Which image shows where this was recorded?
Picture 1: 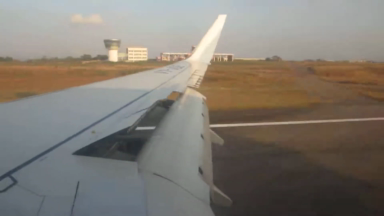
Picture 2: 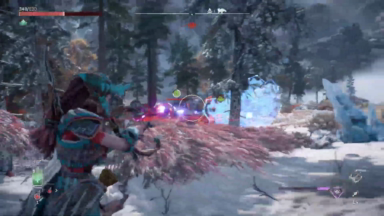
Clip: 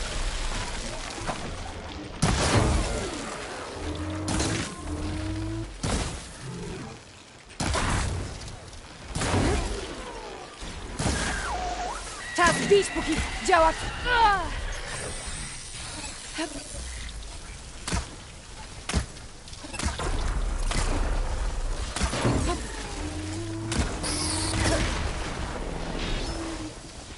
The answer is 2